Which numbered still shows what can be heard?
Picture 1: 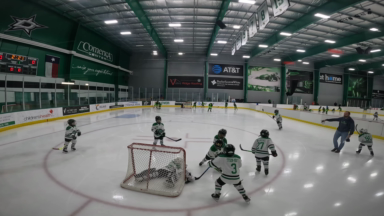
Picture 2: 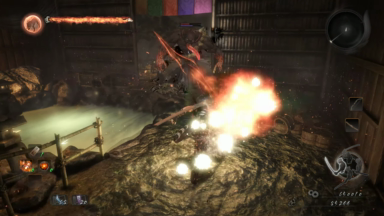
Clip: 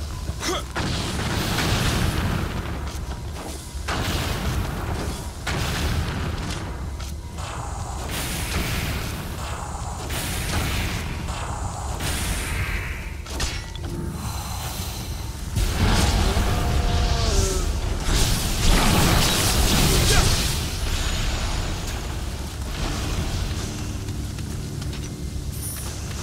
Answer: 2